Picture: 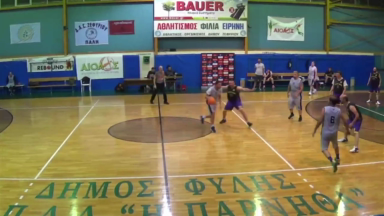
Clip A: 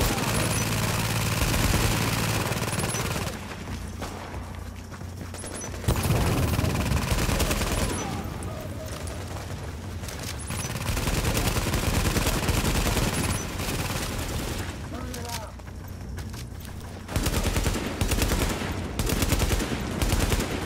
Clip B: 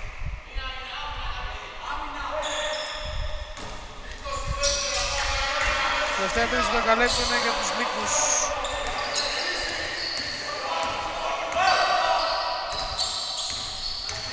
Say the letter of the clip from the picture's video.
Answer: B